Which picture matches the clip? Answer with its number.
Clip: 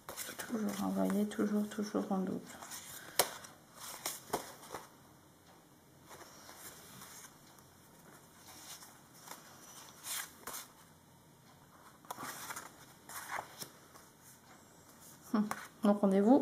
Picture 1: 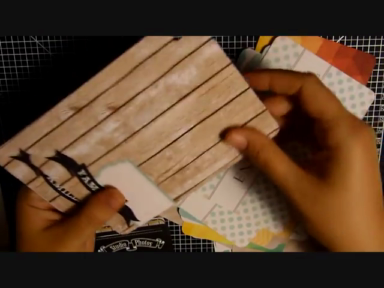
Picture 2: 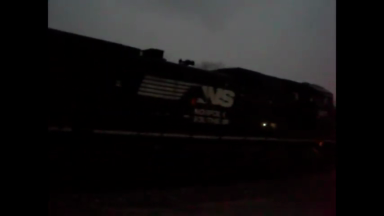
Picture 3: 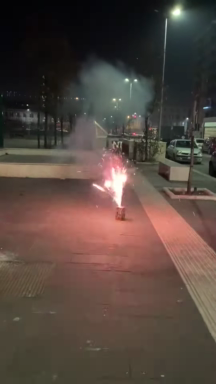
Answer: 1